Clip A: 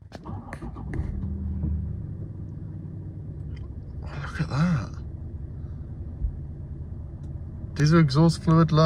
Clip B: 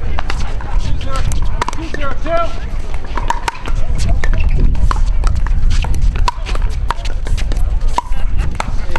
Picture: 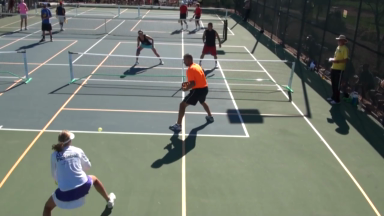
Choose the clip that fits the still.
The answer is B